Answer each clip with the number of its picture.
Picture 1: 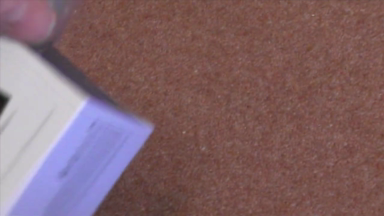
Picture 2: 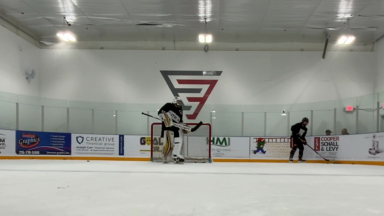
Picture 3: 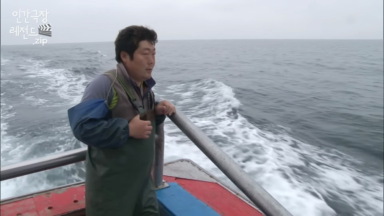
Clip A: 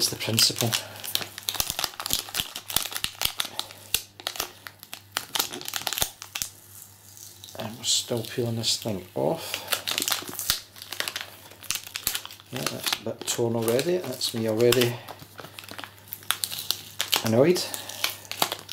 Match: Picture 1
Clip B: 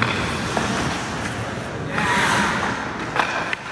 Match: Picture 2